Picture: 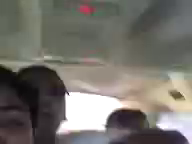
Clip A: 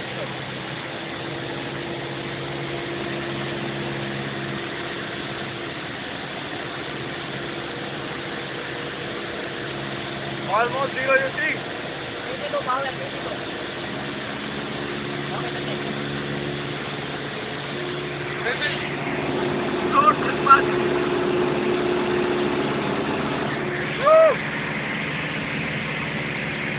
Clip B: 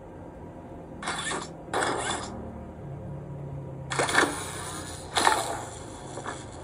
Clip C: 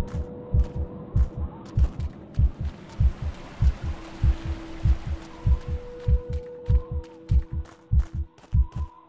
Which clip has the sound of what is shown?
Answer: A